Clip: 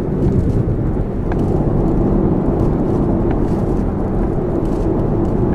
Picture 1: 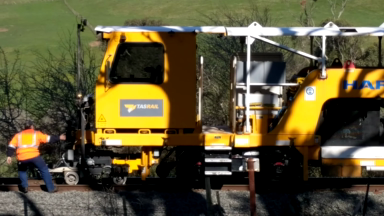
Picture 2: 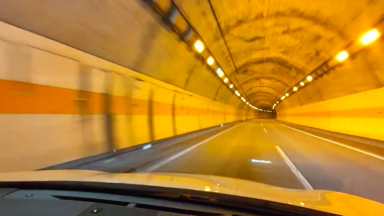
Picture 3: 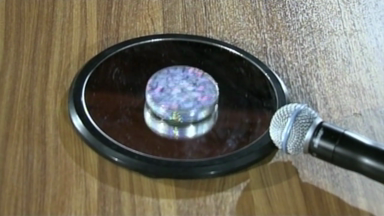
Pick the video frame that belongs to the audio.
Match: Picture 2